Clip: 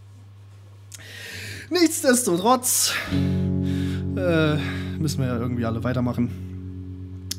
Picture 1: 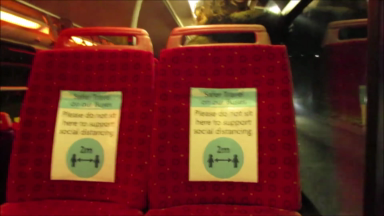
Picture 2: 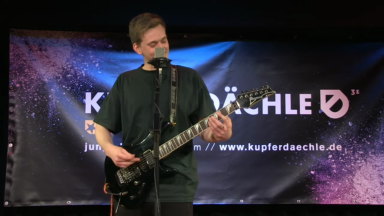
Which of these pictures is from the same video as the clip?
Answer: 2